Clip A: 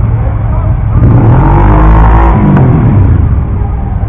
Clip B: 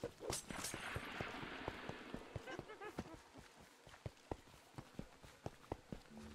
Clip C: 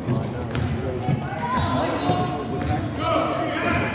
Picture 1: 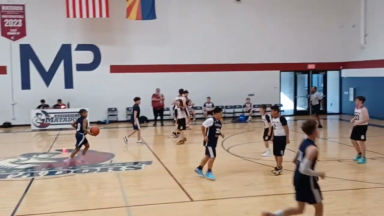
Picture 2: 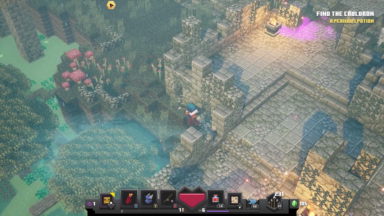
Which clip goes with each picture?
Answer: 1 C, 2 B